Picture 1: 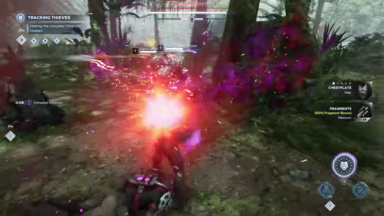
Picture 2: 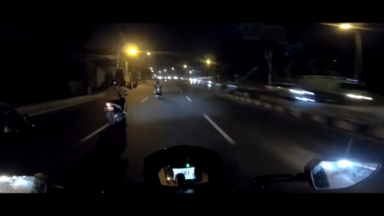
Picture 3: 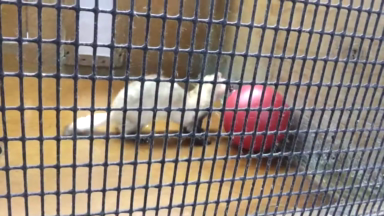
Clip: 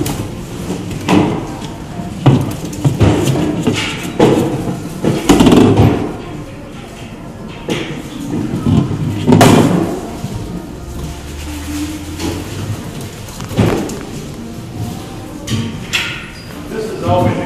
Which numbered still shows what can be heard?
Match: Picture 3